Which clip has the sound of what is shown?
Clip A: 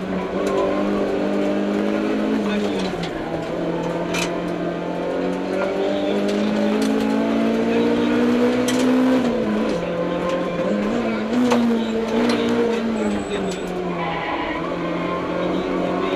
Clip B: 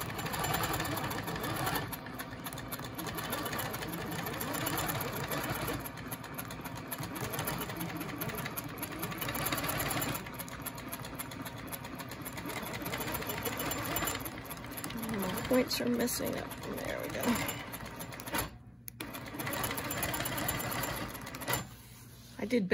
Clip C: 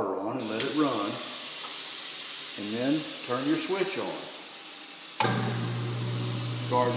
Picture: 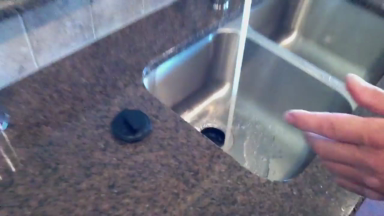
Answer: C